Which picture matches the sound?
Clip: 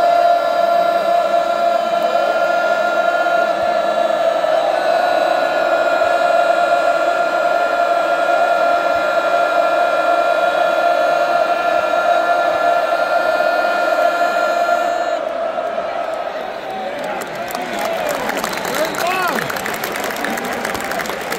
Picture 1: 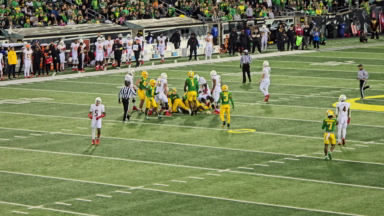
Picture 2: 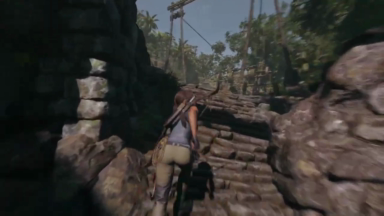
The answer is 1